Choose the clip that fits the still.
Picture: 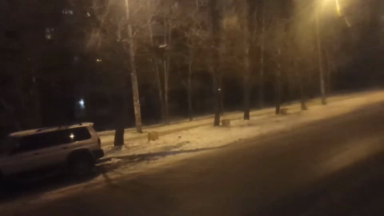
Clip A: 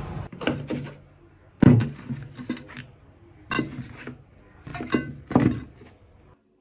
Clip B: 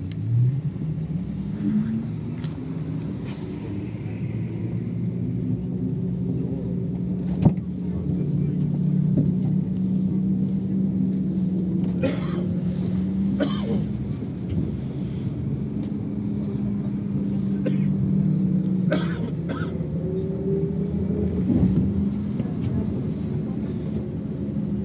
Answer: B